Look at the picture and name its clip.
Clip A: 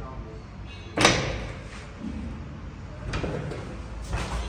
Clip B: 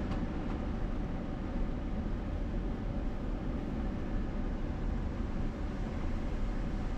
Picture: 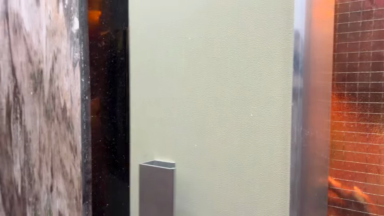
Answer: A